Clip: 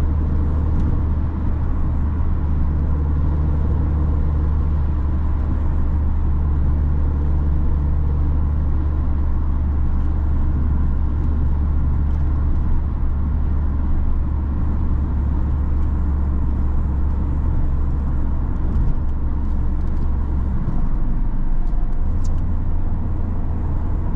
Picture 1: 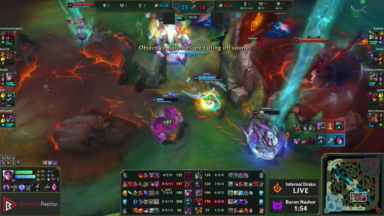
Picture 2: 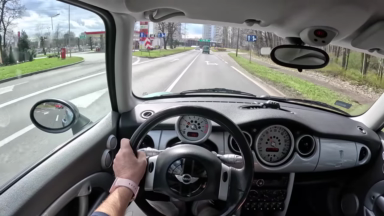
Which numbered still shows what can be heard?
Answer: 2